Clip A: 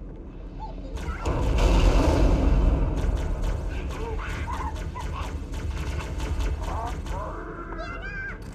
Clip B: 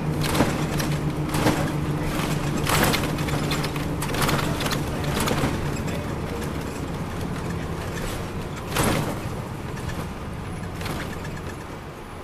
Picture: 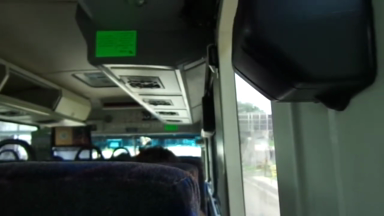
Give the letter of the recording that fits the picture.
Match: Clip B